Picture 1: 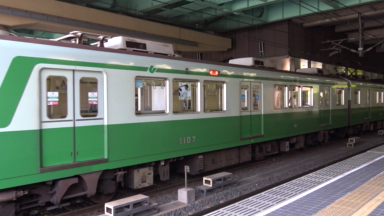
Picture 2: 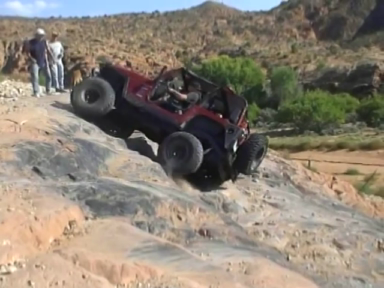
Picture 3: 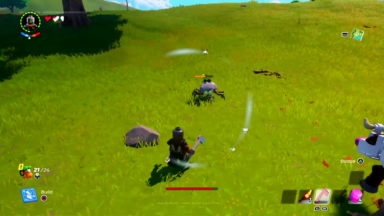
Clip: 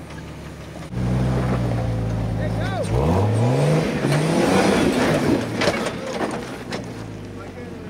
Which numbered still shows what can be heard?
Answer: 2